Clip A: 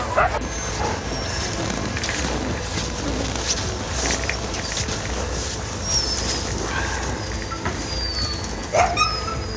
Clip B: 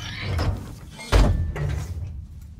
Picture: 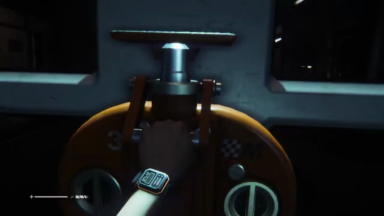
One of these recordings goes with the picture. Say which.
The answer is B